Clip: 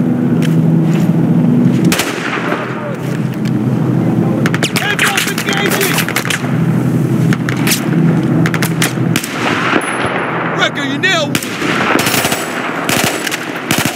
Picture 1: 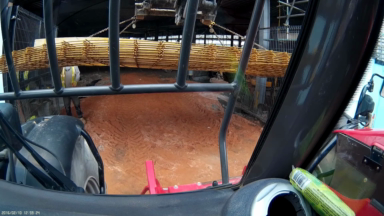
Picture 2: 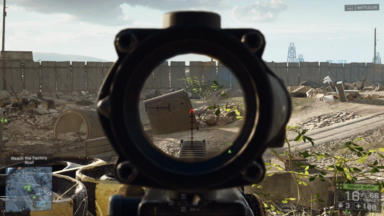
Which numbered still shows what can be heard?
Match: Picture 2